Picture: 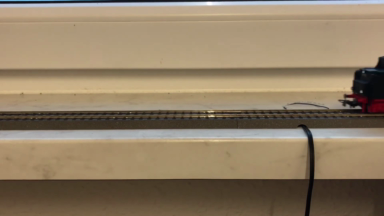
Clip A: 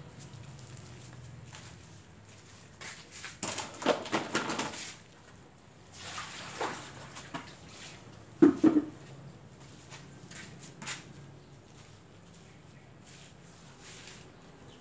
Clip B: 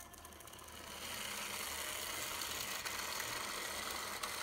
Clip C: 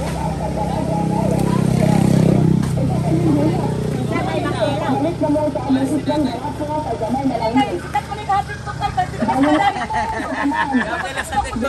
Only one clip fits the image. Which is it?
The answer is B